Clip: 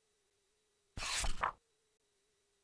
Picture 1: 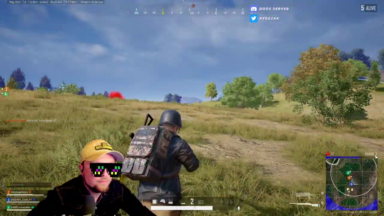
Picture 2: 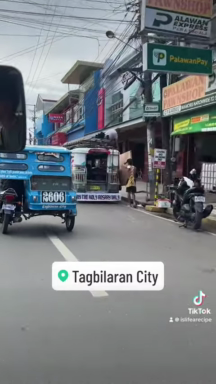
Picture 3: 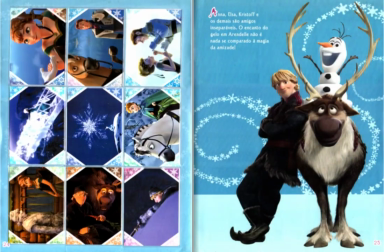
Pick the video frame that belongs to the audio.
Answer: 3